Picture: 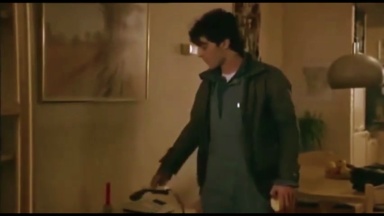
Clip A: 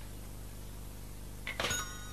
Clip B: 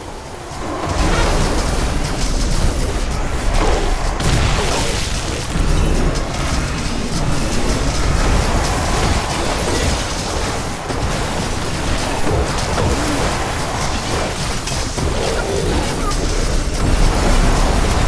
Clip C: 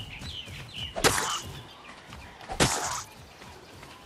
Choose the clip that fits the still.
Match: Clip A